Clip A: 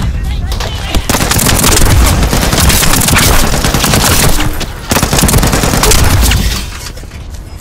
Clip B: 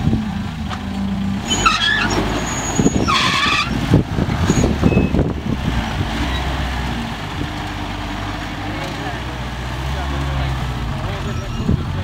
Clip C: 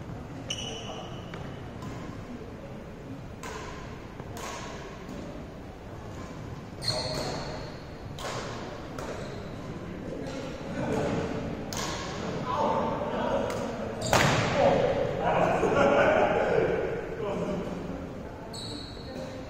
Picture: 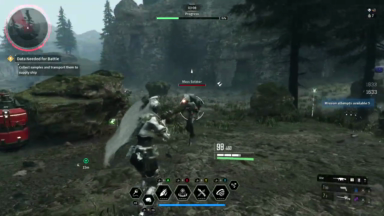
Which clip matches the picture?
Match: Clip A